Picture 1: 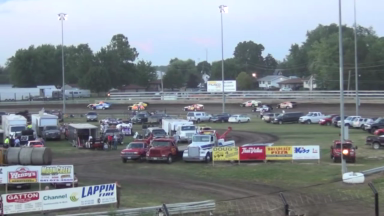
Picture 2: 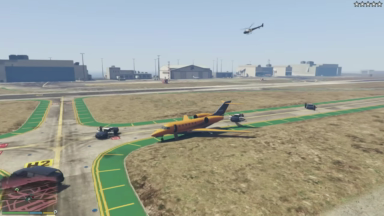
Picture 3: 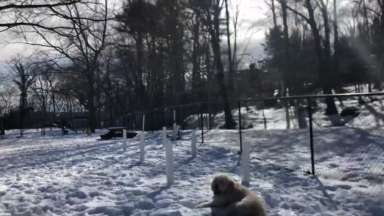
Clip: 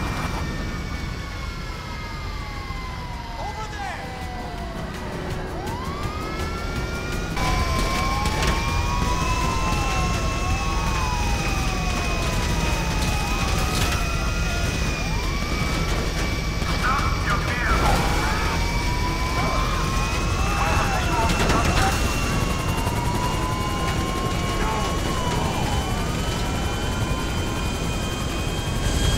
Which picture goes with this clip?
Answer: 2